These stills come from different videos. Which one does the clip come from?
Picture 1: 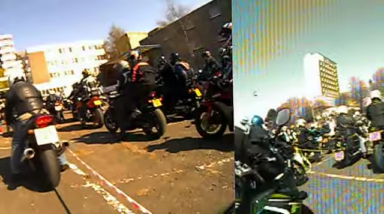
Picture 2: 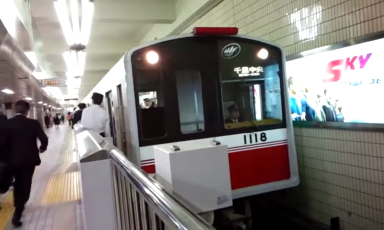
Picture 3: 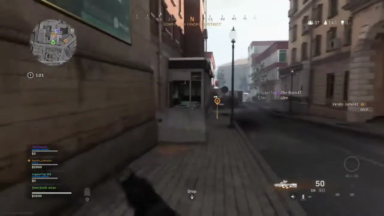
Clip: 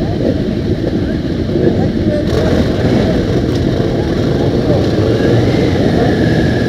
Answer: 1